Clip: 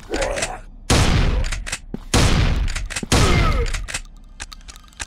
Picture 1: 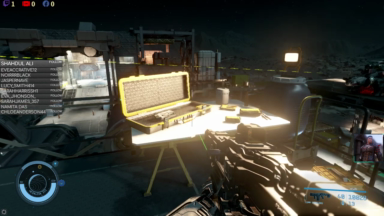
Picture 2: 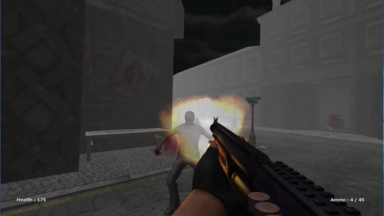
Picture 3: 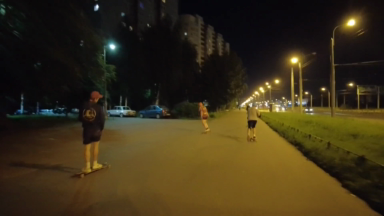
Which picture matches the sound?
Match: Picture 2